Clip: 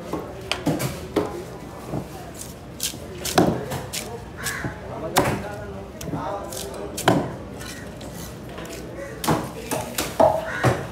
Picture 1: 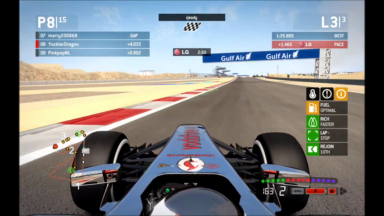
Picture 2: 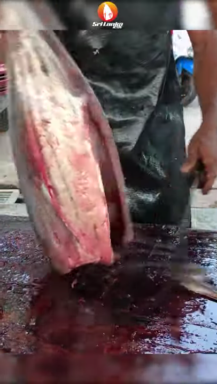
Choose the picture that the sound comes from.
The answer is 2